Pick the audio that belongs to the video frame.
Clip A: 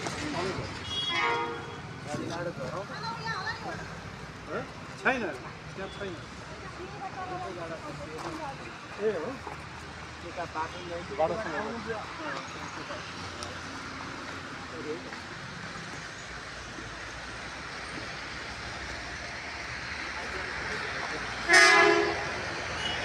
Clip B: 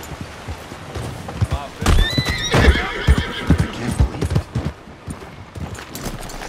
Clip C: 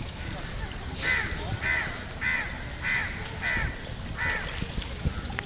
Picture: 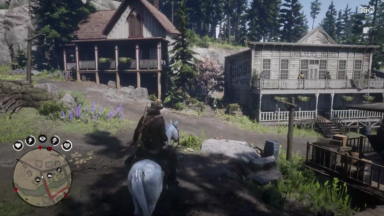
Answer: B